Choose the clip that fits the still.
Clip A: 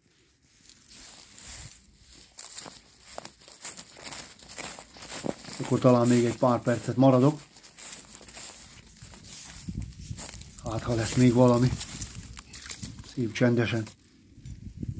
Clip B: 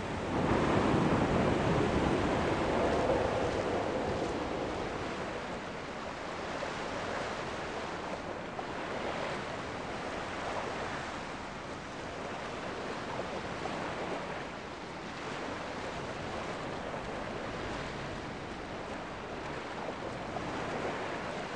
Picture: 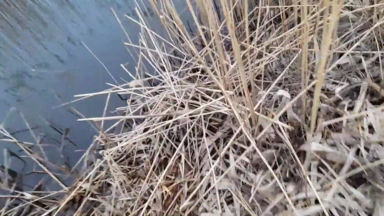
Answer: A